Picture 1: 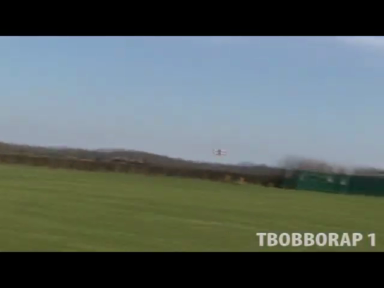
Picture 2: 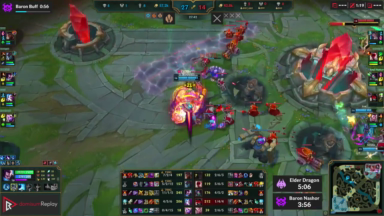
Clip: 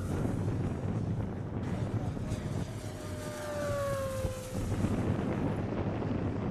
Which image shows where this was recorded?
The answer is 1